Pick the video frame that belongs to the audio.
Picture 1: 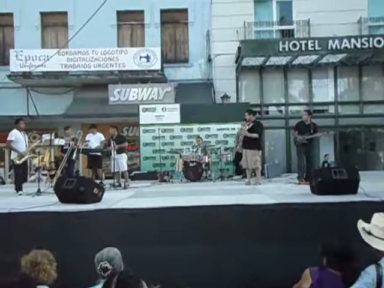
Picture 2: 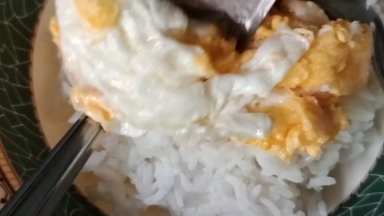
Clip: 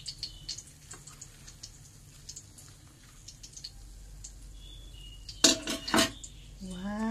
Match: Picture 2